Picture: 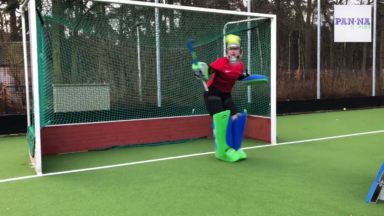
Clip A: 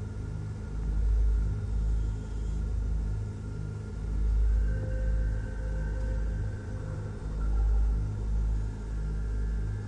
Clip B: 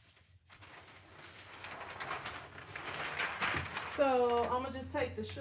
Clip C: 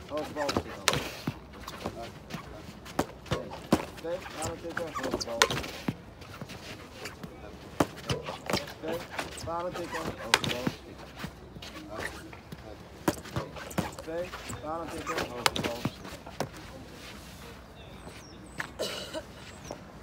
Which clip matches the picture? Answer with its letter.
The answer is C